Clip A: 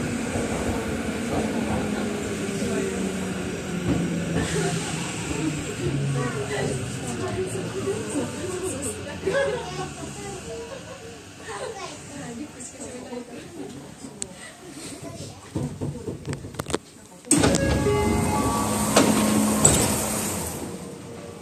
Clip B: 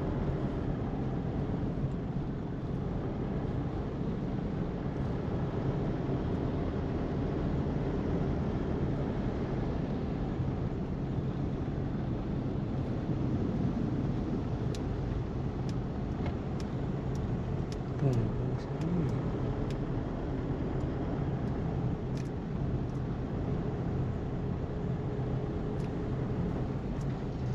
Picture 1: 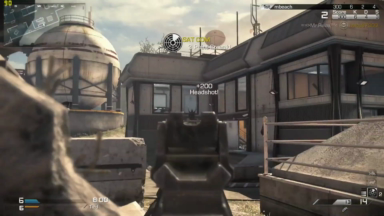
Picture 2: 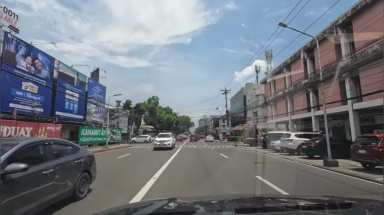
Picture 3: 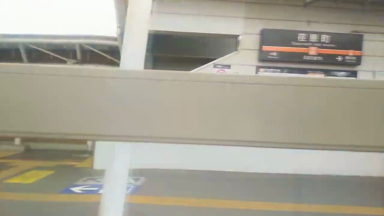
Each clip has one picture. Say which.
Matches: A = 3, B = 2